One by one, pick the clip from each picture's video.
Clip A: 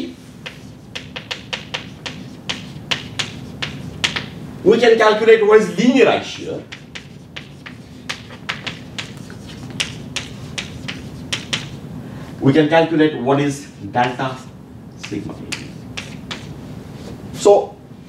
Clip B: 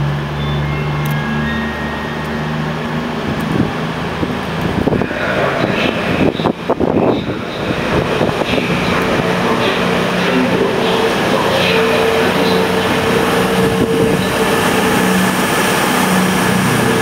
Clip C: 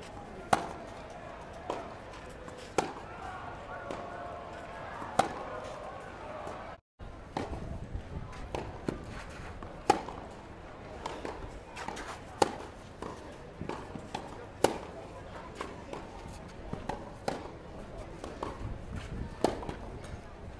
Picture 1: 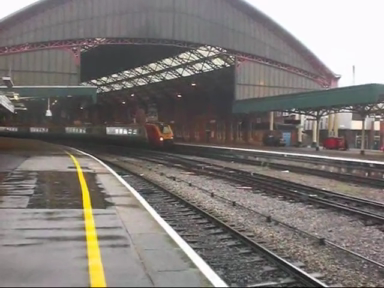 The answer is B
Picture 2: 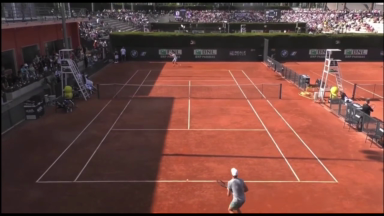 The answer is C